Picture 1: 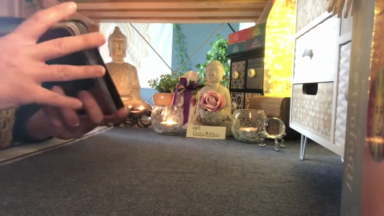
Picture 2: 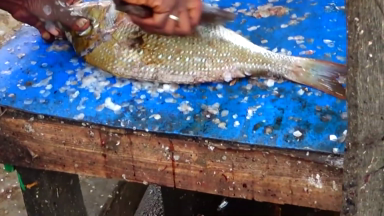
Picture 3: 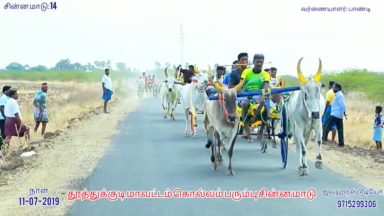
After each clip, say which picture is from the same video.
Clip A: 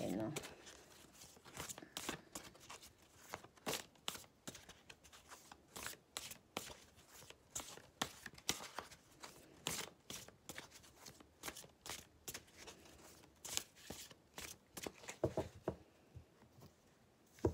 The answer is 1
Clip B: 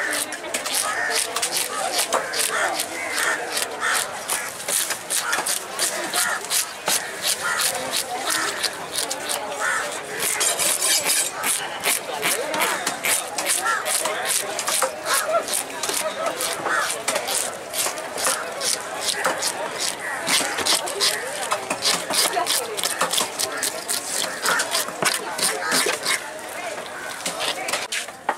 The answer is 2